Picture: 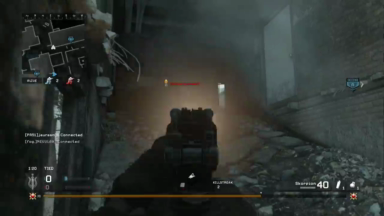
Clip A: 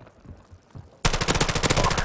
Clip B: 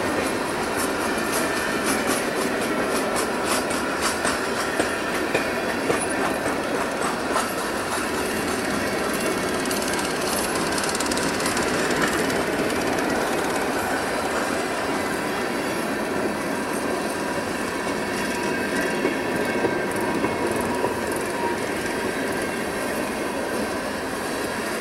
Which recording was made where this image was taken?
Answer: A